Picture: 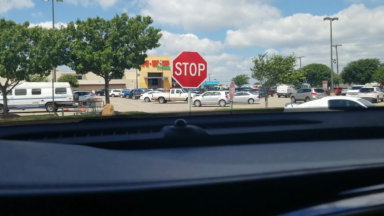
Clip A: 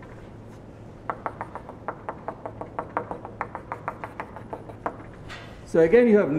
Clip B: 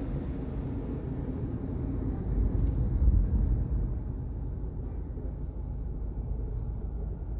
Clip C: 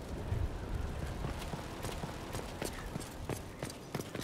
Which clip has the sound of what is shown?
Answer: B